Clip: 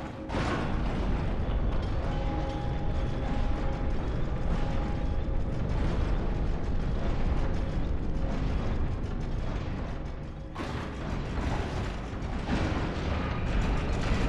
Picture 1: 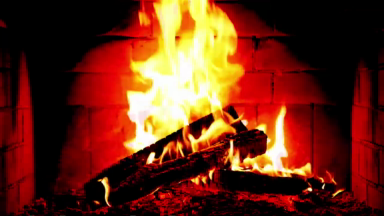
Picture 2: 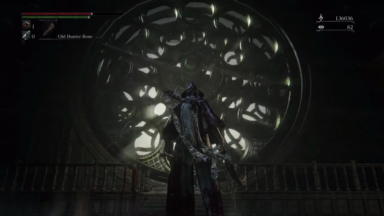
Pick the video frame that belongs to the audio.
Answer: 2